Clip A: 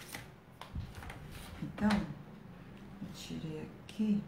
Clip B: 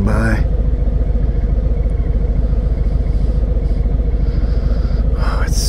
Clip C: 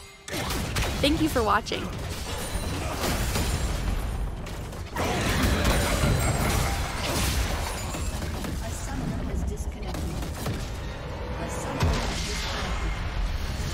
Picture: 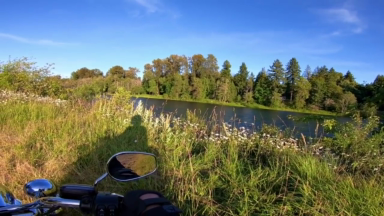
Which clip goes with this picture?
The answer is B